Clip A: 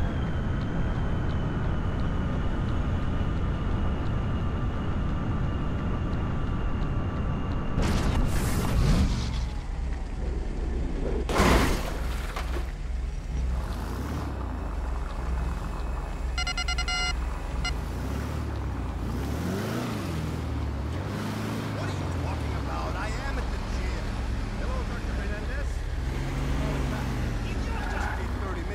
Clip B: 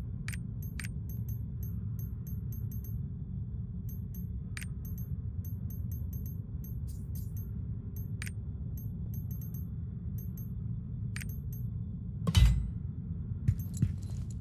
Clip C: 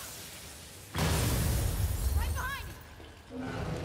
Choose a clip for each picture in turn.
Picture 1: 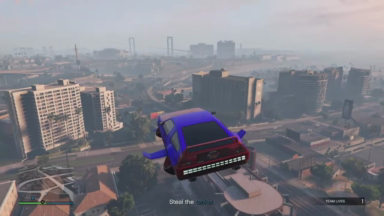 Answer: A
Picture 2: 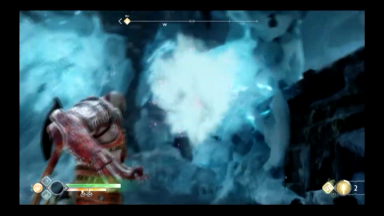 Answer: C